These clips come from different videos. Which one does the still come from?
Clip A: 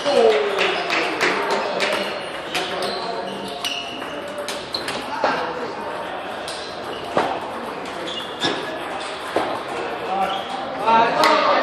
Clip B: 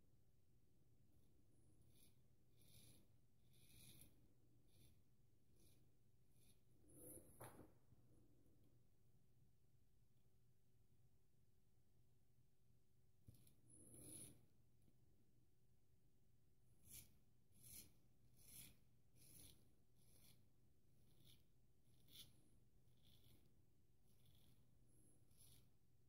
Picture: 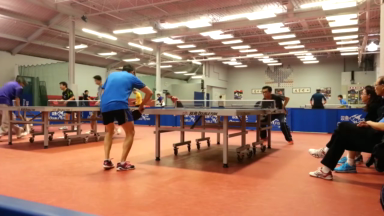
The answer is A